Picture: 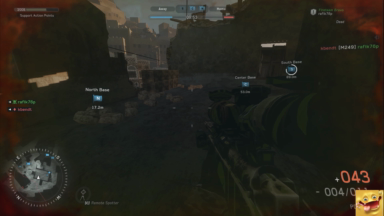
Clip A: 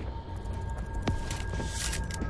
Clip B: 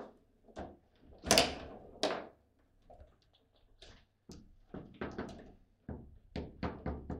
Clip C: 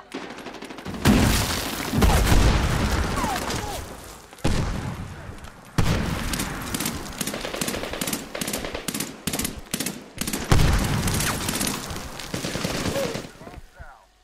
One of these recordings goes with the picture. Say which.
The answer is C